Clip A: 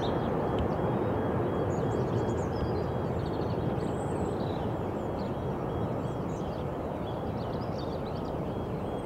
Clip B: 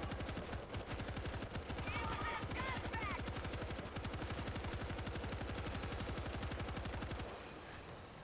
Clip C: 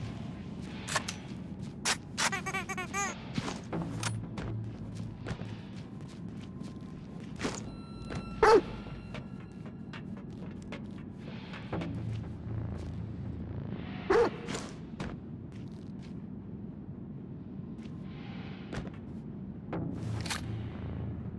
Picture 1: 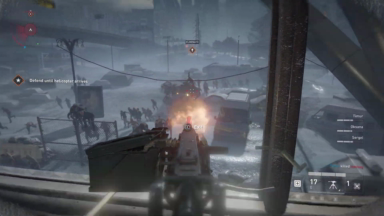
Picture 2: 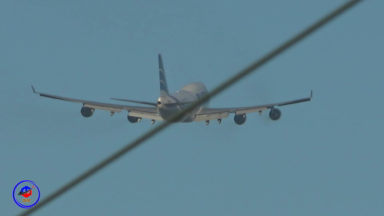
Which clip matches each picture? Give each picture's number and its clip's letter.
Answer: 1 B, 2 A